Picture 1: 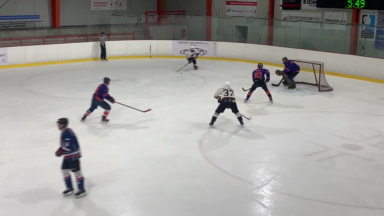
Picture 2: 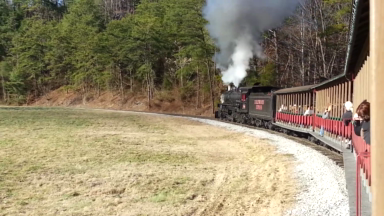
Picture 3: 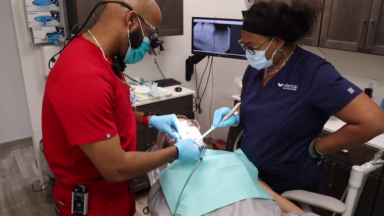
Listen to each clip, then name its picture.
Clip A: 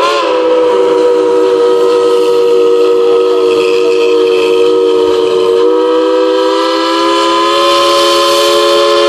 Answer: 2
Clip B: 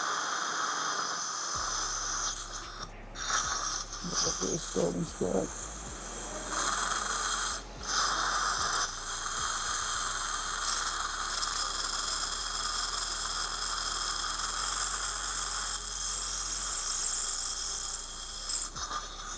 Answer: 3